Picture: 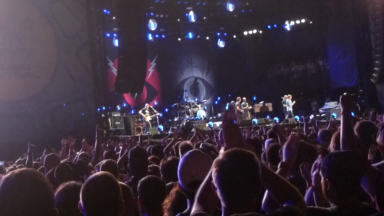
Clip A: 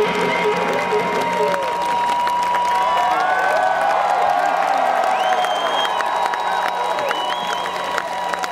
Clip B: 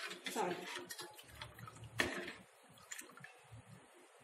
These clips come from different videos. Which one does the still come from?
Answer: A